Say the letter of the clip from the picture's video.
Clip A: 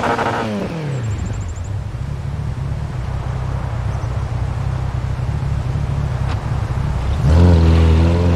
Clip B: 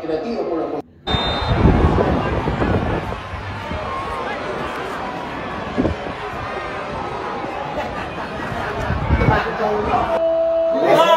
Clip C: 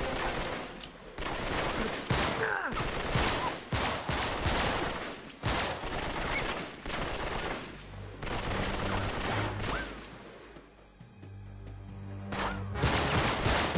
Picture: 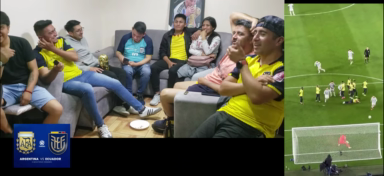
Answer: B